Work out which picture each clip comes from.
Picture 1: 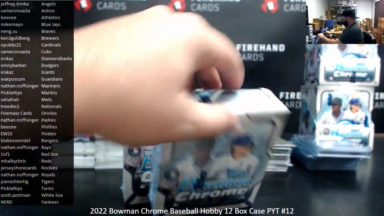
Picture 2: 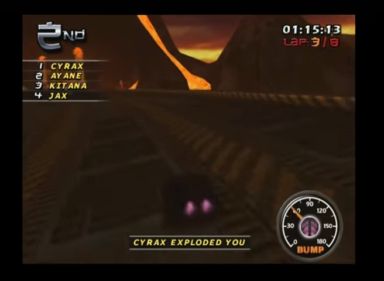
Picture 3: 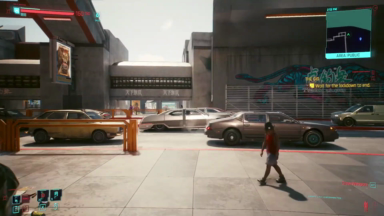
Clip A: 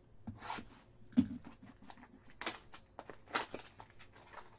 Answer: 1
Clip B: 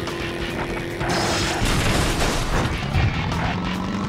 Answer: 2